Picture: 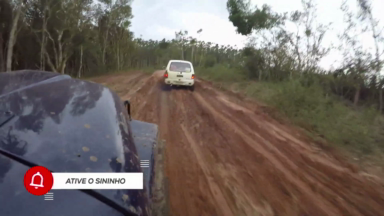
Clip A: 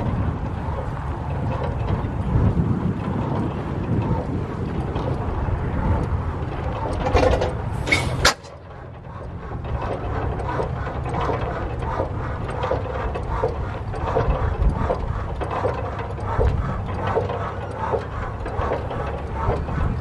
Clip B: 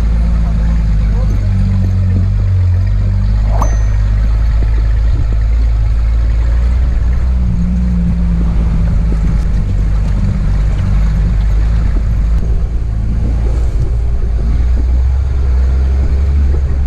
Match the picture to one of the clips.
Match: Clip B